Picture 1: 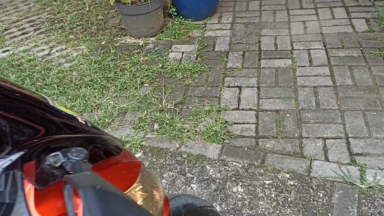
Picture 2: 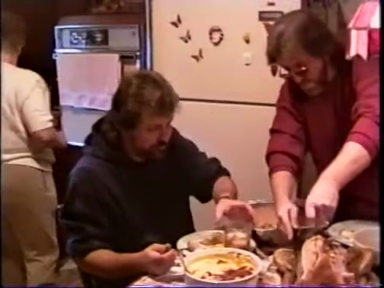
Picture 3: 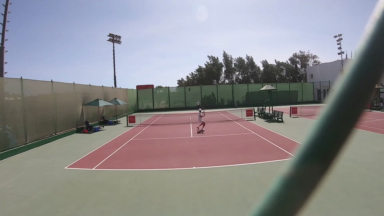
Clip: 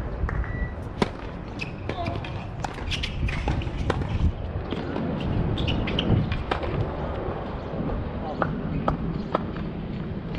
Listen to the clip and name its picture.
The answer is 3